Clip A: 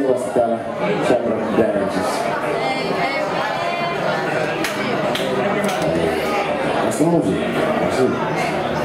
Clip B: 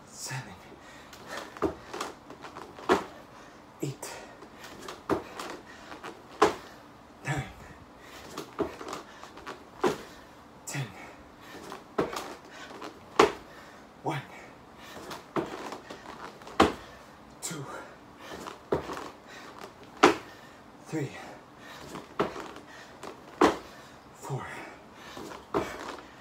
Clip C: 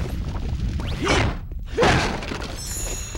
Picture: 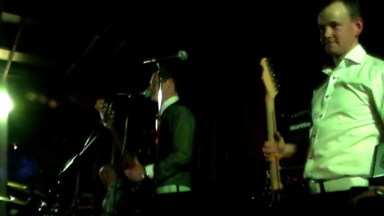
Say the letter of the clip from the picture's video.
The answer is A